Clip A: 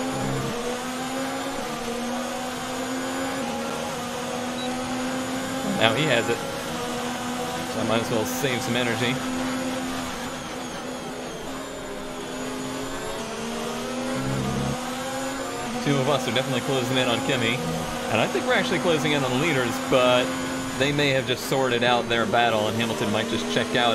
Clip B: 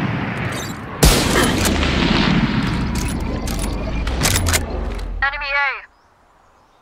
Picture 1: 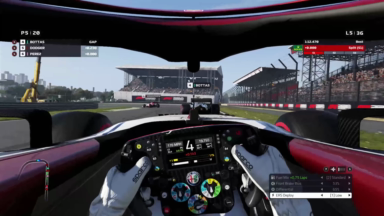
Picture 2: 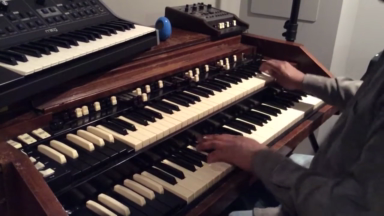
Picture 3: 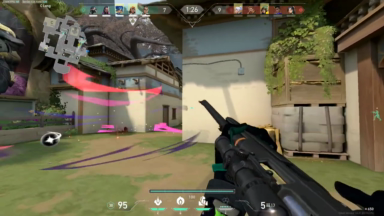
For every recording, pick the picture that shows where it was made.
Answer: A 1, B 3